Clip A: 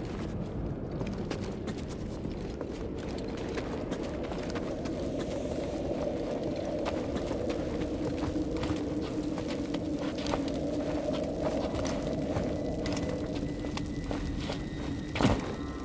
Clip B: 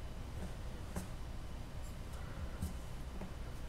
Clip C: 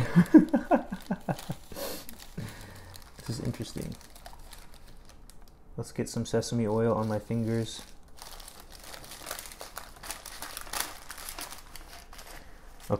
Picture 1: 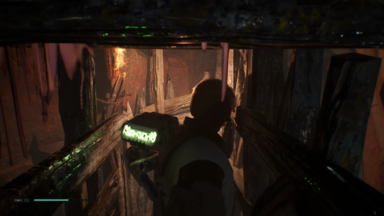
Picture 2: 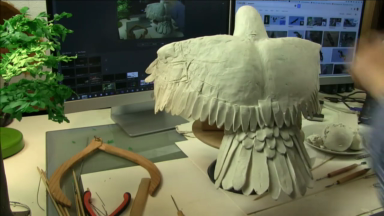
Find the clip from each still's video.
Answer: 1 A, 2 B